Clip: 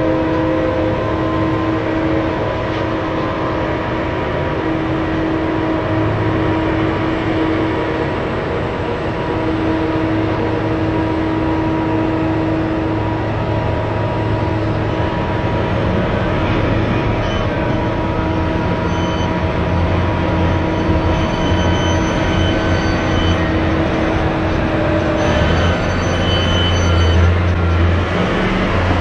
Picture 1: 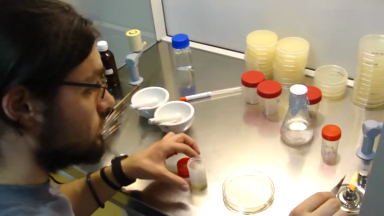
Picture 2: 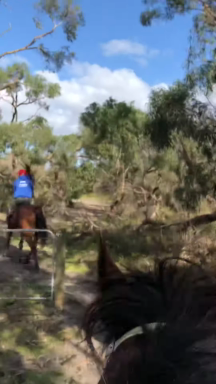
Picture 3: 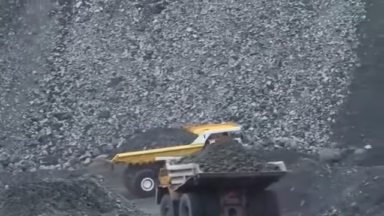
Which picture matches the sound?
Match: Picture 3